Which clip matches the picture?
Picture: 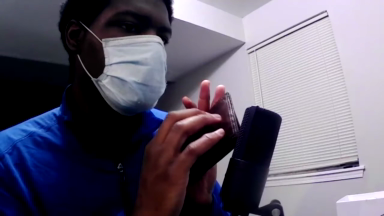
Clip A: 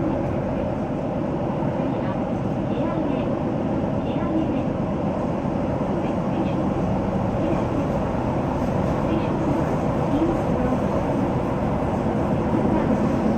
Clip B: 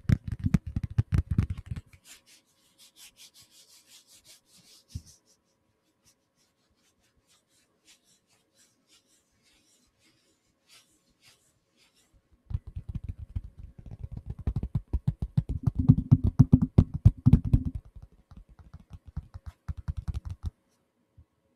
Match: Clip B